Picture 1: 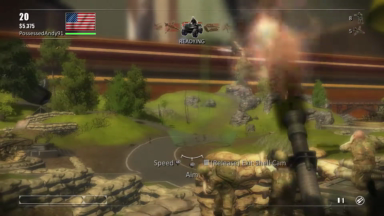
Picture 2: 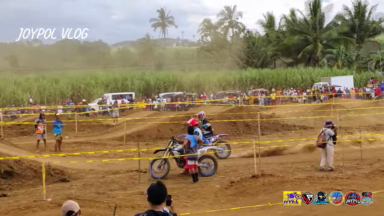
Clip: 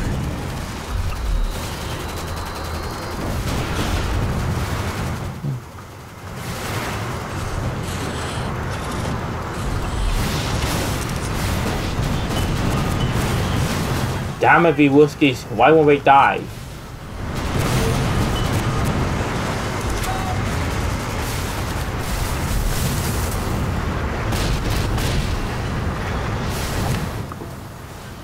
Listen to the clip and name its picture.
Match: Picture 1